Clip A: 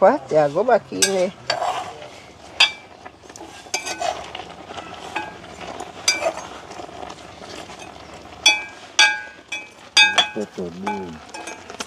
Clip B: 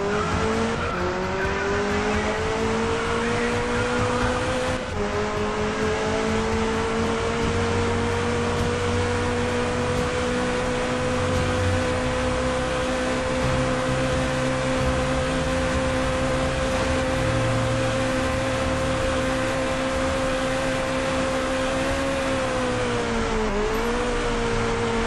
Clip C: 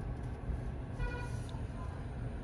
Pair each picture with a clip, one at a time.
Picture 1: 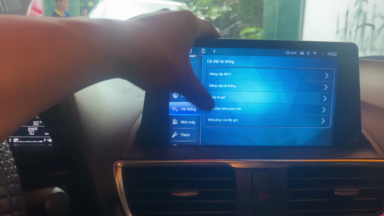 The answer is C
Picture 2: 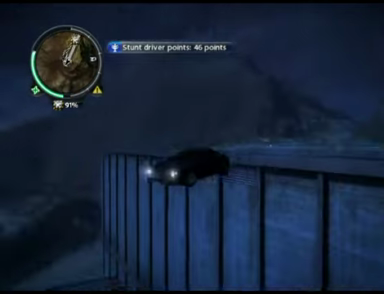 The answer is B